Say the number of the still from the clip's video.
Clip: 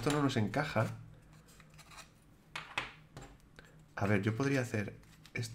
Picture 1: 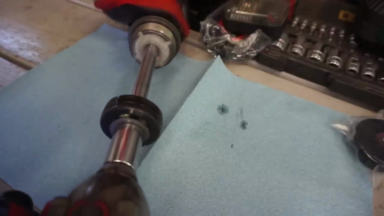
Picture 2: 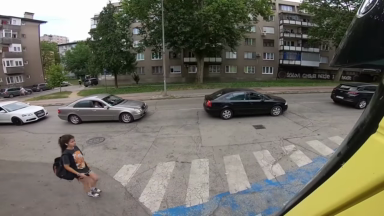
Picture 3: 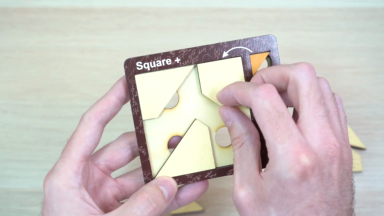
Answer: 3